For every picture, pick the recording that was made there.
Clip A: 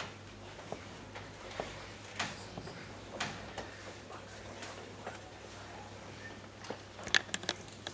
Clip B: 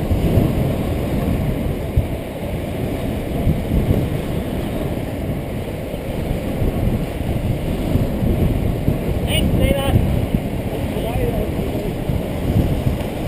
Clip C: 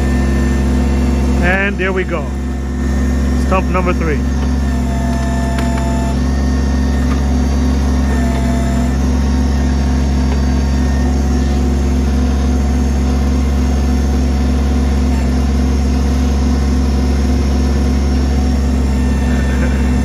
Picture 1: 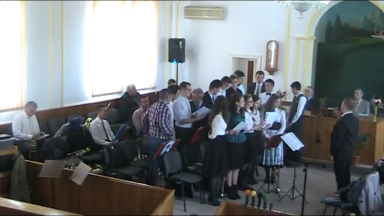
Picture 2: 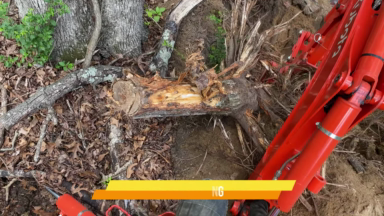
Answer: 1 A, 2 C